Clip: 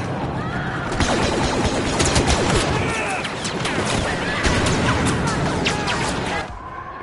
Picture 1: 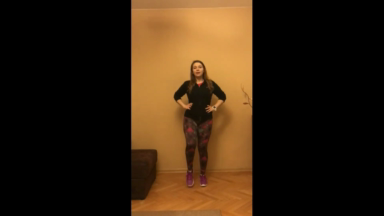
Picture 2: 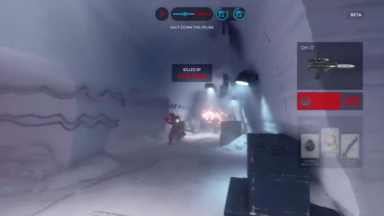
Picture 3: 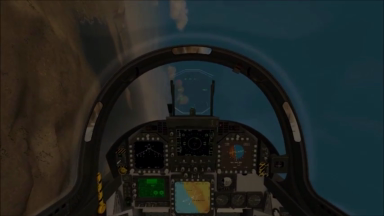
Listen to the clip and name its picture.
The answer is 2